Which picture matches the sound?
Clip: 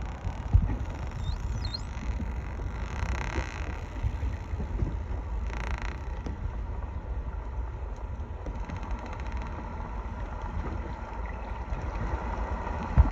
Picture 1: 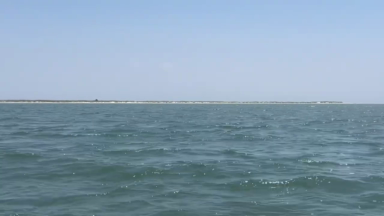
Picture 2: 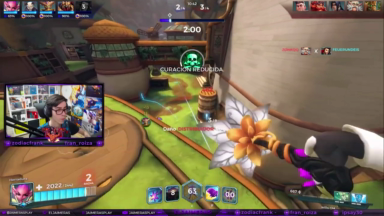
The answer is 1